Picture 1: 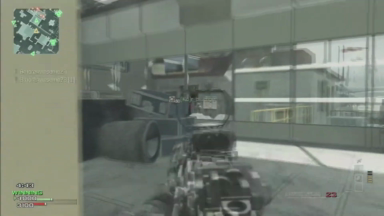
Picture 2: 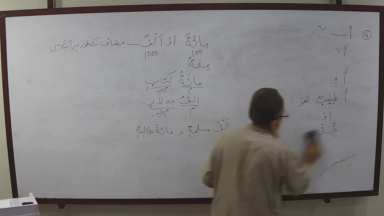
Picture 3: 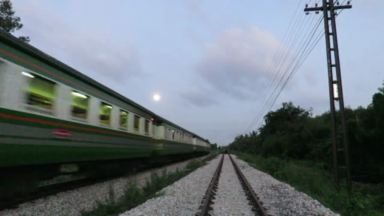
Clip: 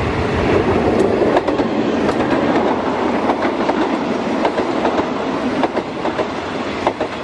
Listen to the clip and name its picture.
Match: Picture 3